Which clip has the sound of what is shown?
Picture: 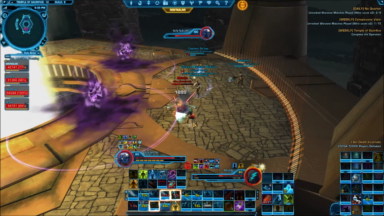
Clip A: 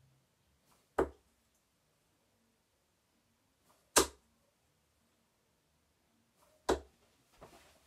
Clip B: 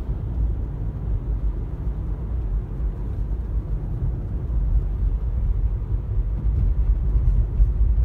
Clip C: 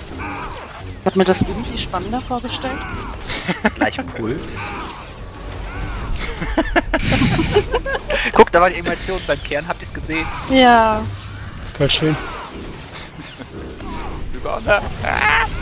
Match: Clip C